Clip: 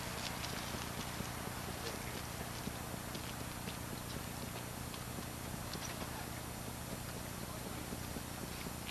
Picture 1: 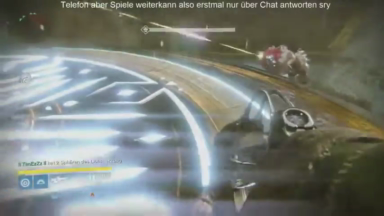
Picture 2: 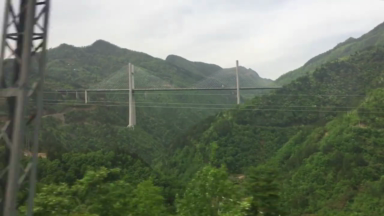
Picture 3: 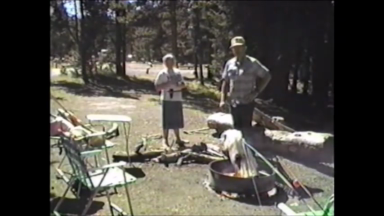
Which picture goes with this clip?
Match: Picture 3